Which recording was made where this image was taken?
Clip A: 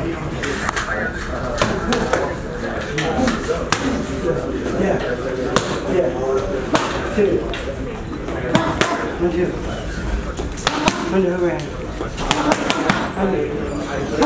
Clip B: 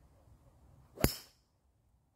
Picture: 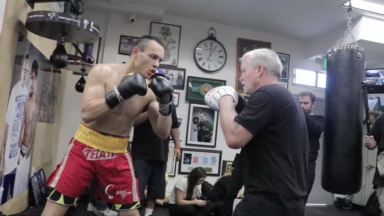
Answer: A